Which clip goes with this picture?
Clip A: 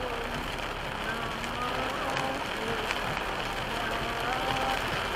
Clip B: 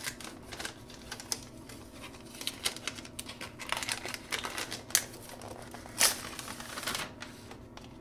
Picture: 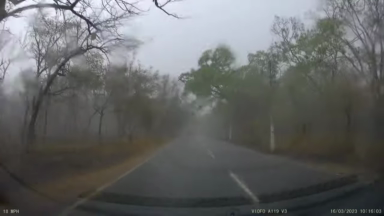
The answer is A